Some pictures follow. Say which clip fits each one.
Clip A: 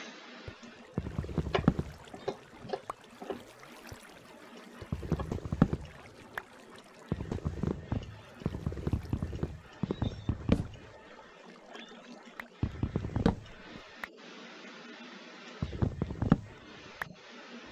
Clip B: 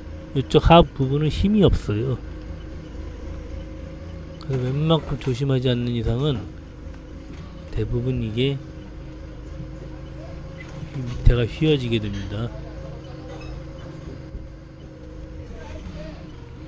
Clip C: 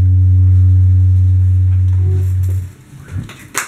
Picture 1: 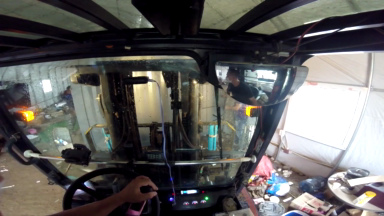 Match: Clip B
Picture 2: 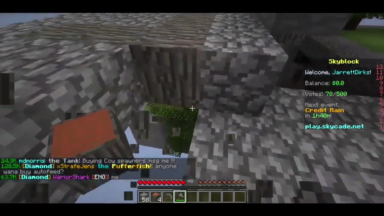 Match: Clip A